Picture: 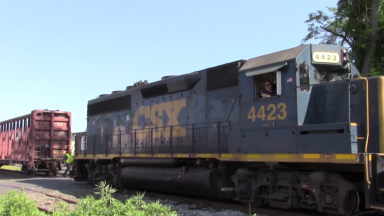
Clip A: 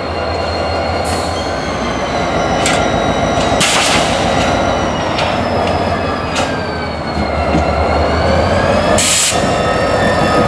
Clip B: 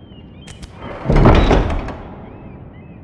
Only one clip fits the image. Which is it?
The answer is A